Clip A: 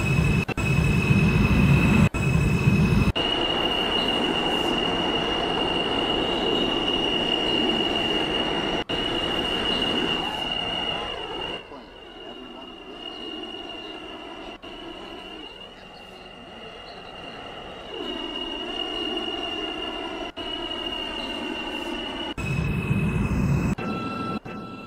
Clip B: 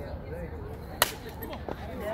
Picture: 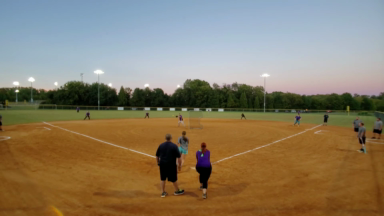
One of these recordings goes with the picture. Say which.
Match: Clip B